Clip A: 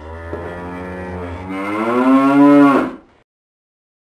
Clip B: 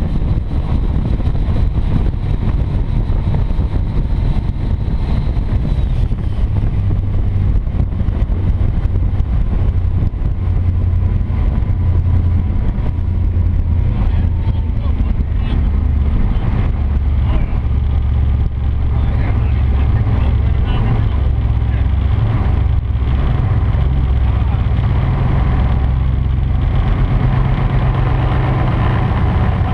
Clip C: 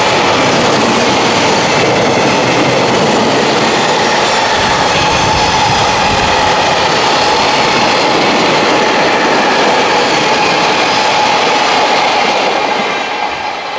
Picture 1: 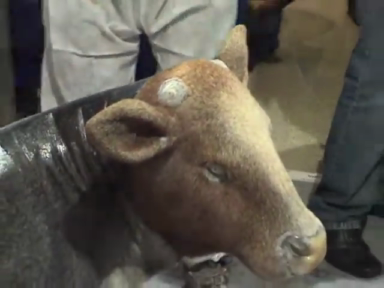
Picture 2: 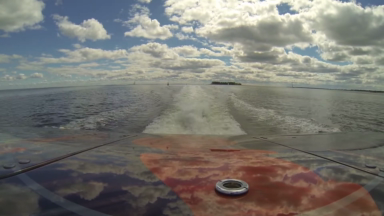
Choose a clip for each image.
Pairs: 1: A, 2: B